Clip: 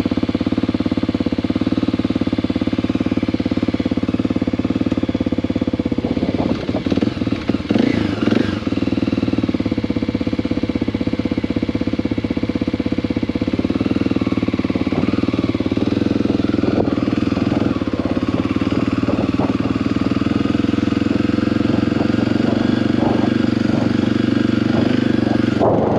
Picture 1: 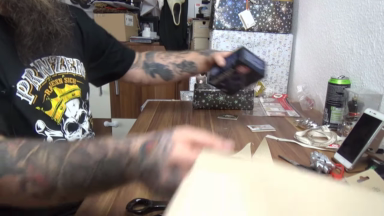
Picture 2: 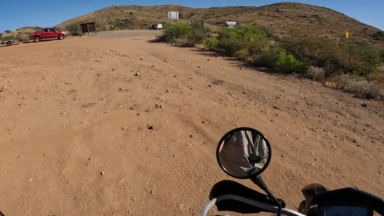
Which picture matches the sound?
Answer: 2